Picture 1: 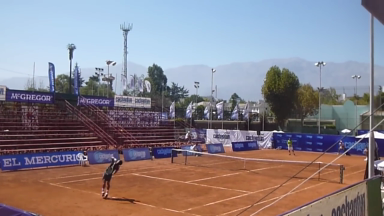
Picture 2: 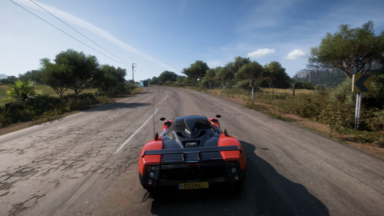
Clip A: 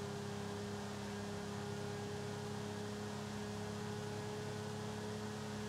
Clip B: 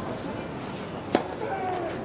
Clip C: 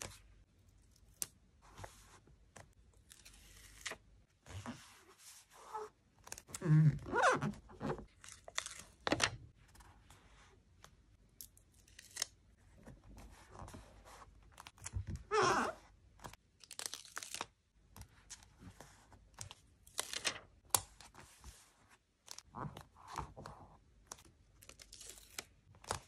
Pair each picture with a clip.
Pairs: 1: B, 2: A